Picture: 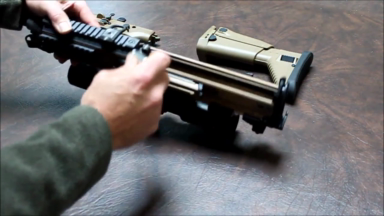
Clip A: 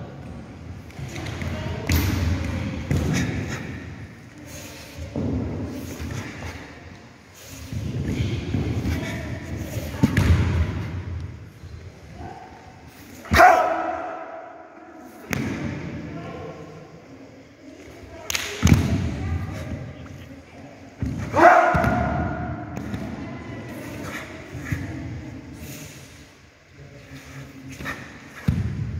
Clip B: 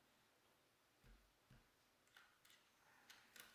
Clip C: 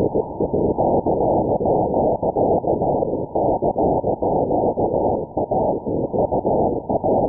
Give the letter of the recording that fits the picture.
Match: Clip B